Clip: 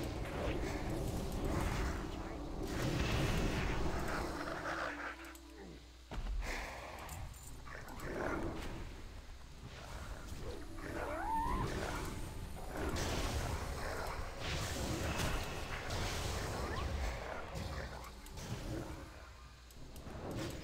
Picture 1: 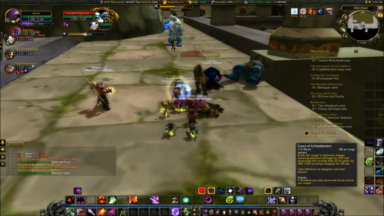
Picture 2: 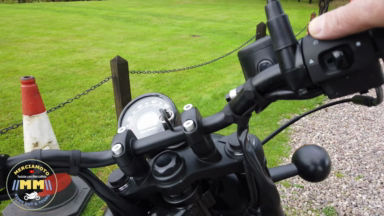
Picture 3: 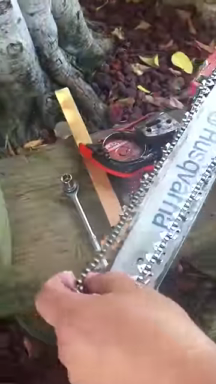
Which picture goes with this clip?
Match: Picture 1